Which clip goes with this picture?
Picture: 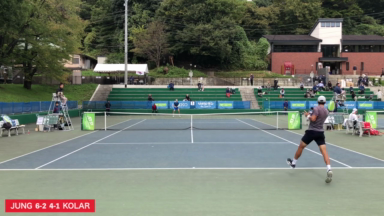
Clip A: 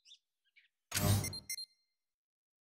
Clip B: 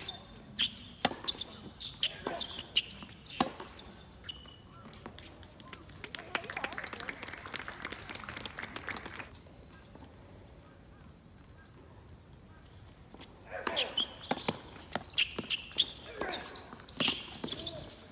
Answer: B